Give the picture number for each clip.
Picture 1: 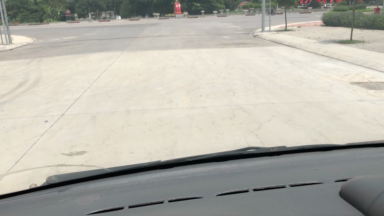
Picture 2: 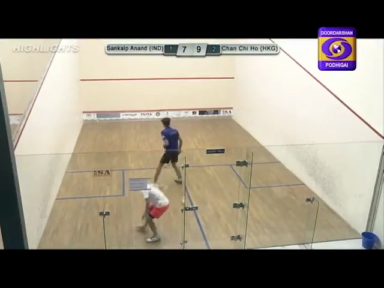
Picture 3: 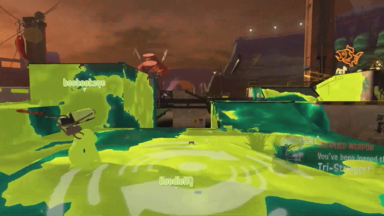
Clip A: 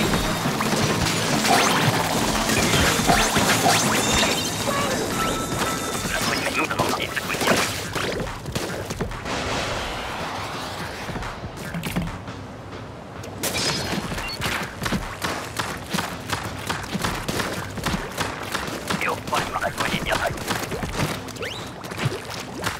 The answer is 3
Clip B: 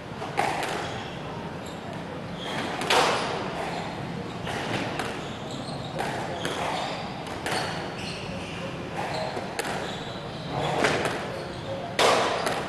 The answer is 2